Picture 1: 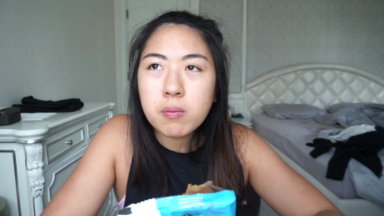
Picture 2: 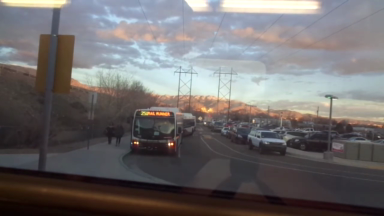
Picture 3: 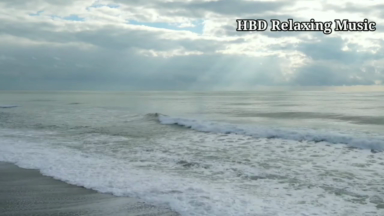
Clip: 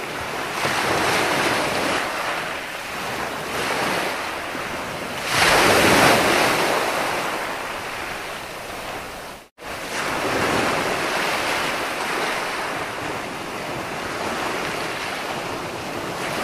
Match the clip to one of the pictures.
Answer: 3